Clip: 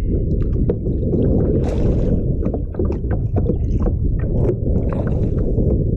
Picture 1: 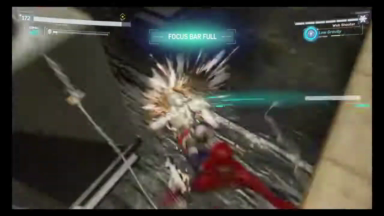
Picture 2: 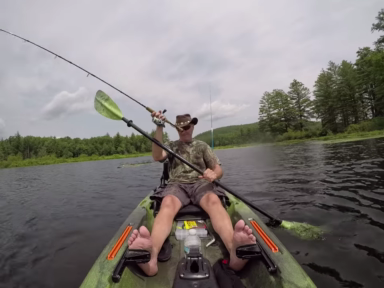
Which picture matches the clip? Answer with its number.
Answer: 2